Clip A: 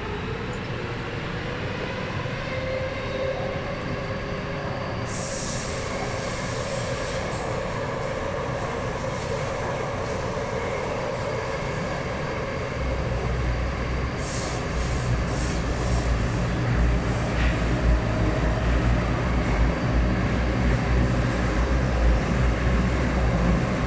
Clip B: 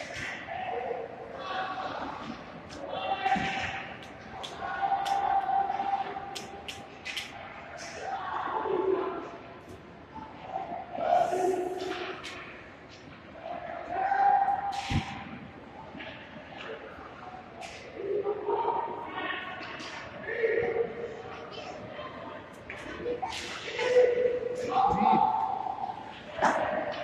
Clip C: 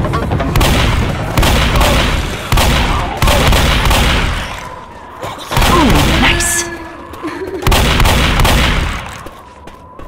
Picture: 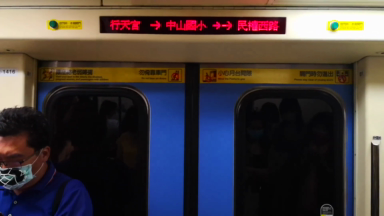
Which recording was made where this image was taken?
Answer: A